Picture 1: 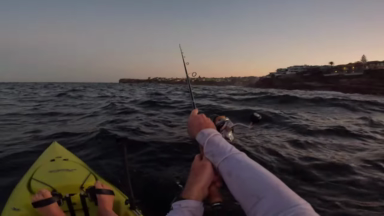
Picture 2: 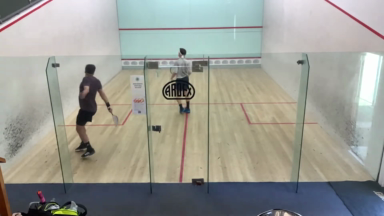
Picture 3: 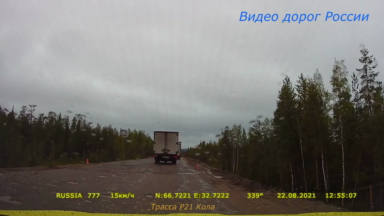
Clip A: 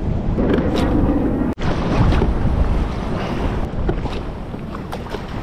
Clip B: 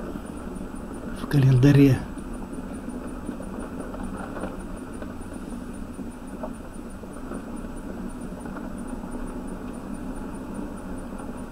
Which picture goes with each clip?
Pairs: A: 1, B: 3